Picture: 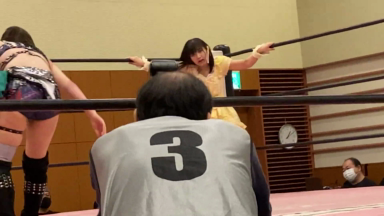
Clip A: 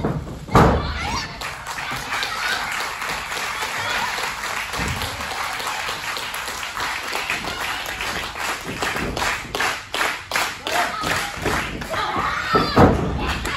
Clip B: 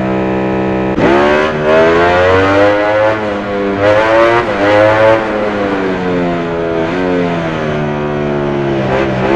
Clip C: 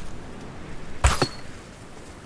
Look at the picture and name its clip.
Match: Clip A